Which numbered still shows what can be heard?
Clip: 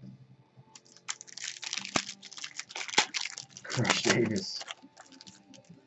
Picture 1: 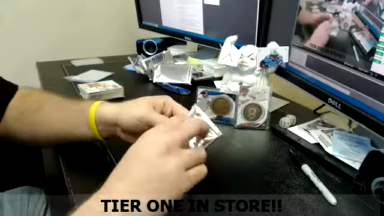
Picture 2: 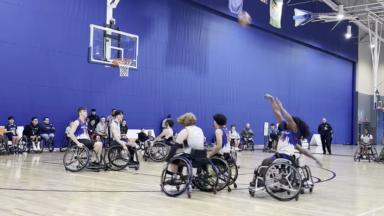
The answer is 1